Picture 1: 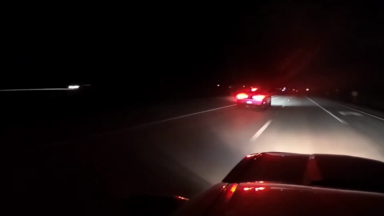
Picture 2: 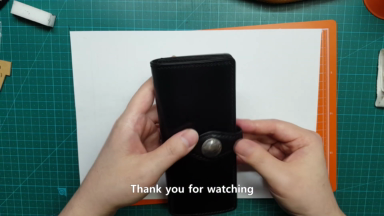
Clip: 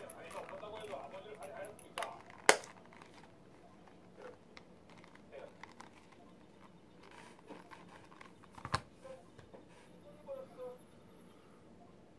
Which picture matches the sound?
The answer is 2